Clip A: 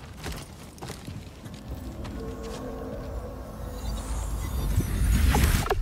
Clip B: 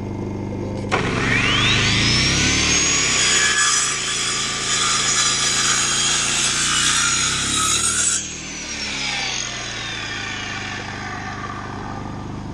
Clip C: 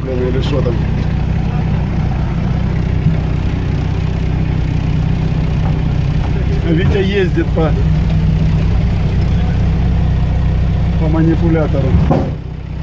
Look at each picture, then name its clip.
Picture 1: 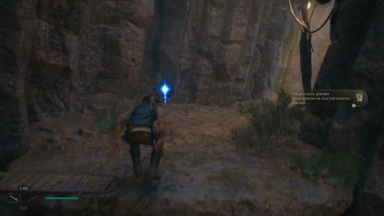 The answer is A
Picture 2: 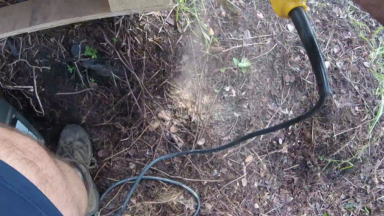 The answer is B